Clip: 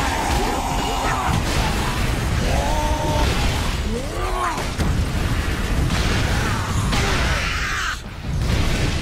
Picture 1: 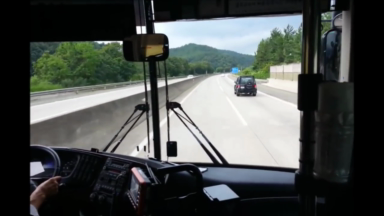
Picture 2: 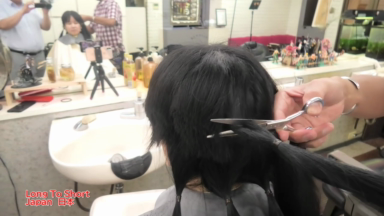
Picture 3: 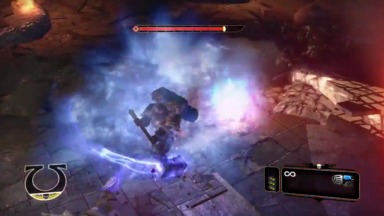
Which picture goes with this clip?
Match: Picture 3